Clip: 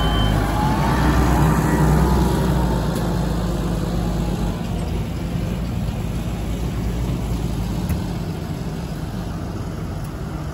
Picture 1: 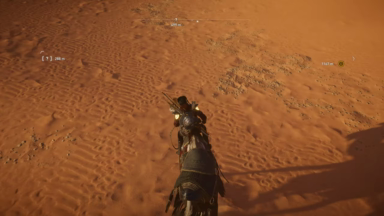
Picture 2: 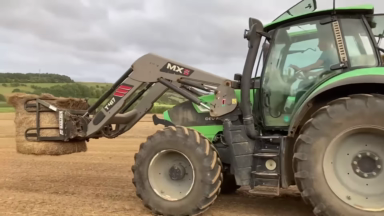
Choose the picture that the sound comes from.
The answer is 2